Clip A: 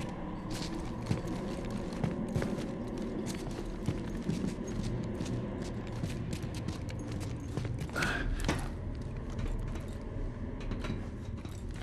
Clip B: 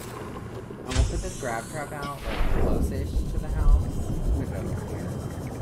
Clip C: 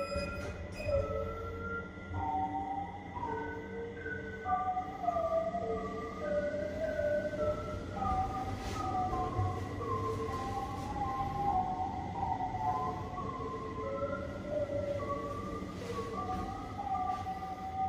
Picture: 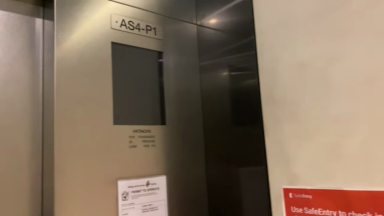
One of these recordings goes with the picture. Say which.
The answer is C